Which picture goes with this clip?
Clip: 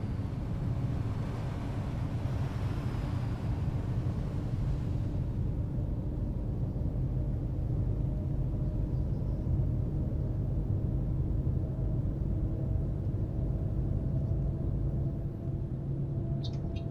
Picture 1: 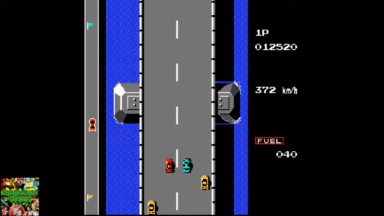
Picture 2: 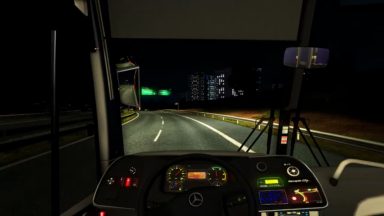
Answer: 2